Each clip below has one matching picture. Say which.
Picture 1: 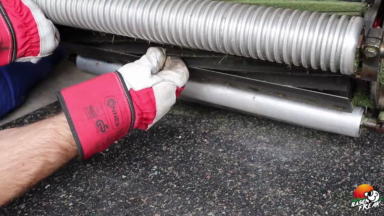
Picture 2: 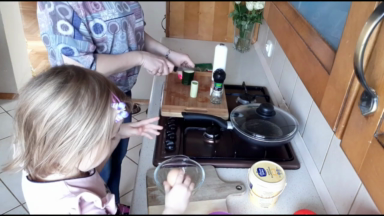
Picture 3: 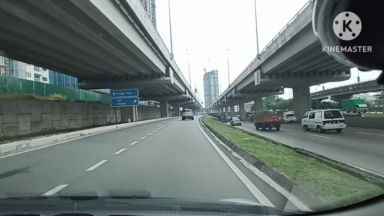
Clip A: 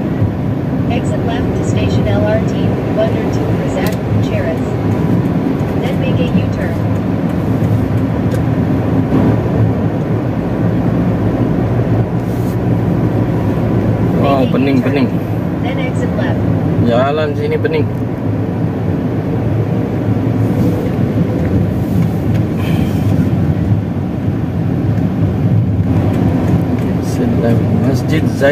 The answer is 3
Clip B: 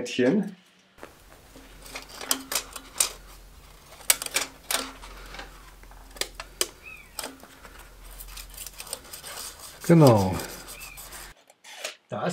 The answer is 1